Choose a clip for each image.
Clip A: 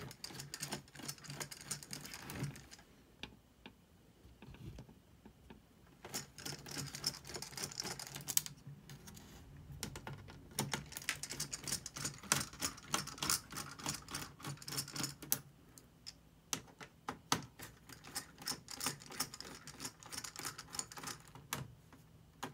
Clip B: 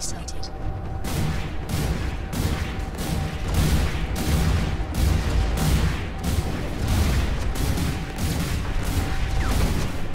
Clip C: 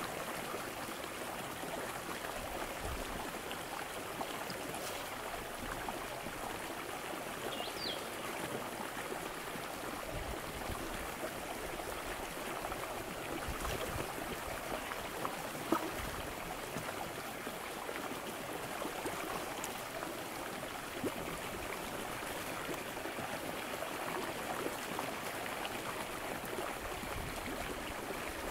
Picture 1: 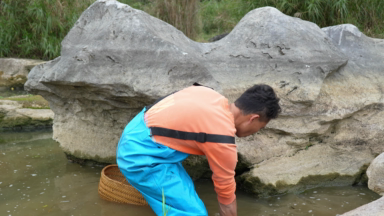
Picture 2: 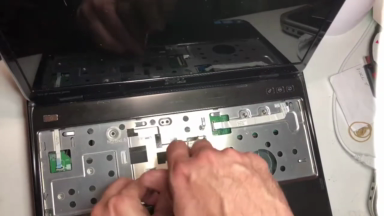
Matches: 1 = C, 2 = A